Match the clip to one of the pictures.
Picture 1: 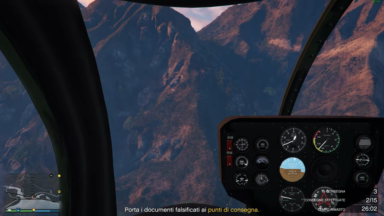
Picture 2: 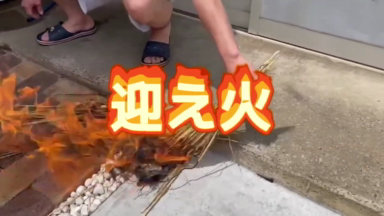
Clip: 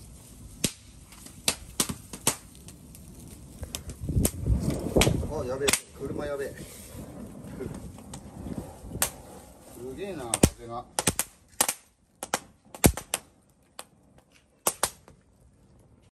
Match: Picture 2